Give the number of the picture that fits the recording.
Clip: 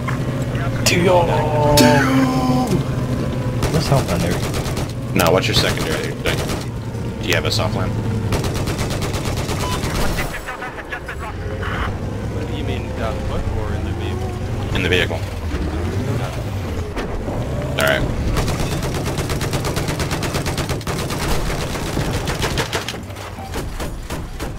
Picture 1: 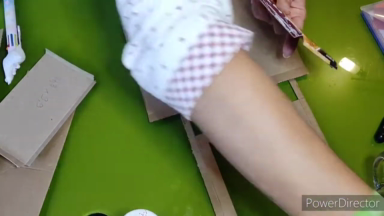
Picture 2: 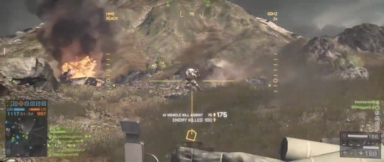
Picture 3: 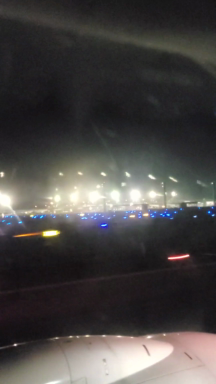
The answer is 2